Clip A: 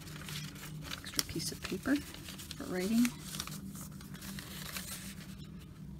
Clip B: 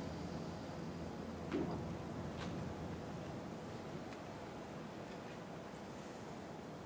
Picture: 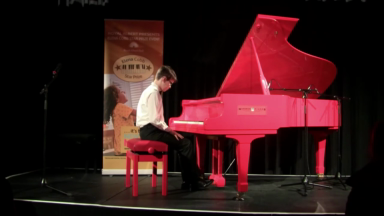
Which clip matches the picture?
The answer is B